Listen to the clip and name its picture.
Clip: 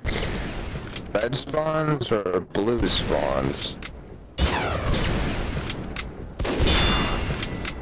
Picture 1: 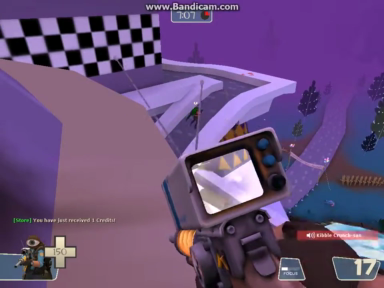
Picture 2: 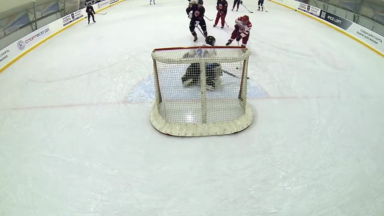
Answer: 1